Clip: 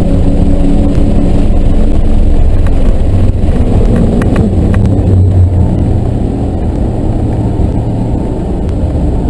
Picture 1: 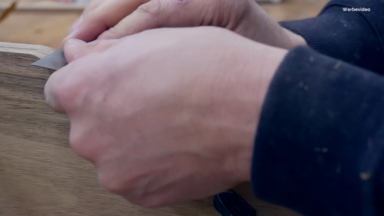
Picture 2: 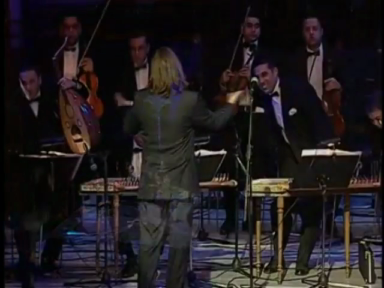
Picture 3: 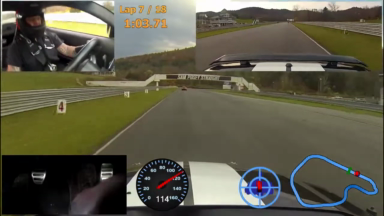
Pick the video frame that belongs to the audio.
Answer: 3